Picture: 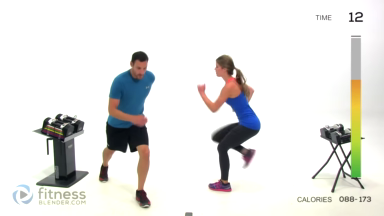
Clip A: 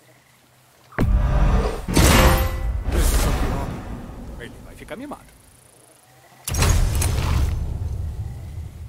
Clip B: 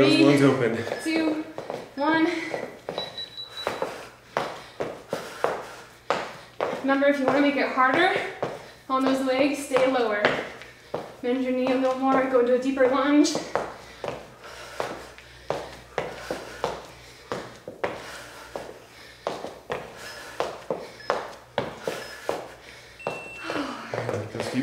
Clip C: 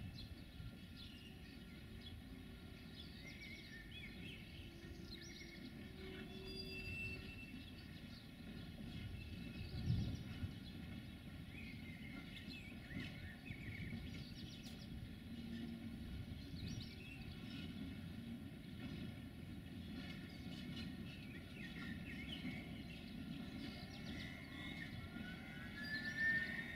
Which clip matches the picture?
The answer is B